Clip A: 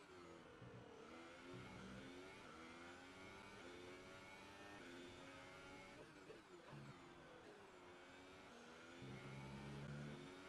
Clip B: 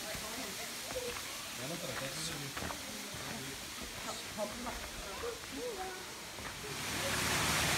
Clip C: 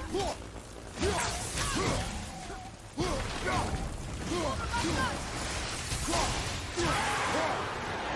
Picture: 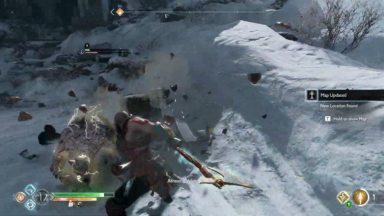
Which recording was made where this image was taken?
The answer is C